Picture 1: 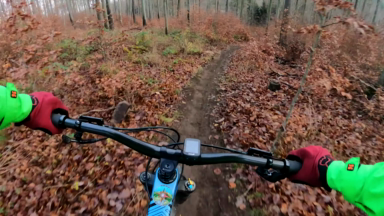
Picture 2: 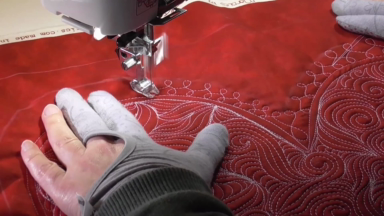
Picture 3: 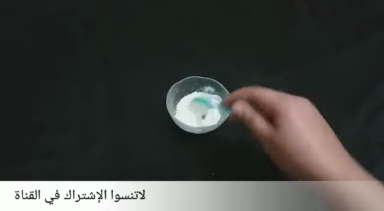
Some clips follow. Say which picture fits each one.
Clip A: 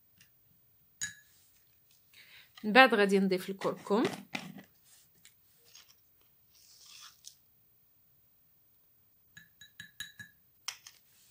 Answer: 3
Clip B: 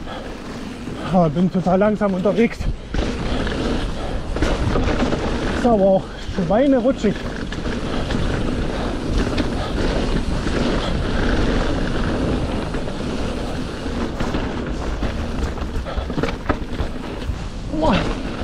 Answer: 1